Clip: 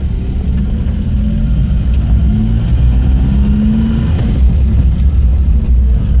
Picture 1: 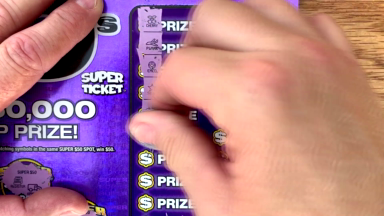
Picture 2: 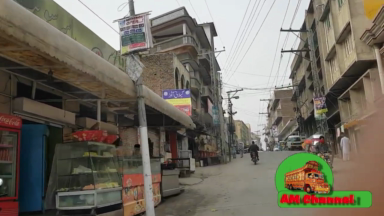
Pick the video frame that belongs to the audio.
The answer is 2